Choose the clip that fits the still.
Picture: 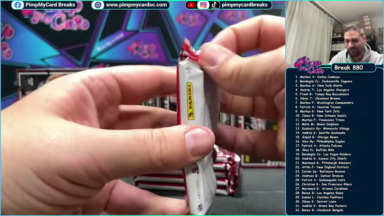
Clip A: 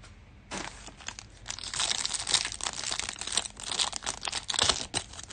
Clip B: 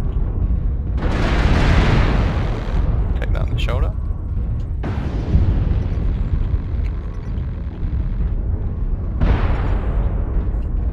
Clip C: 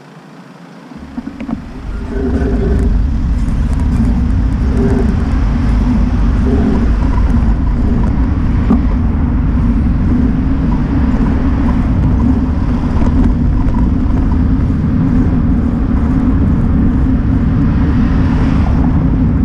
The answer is A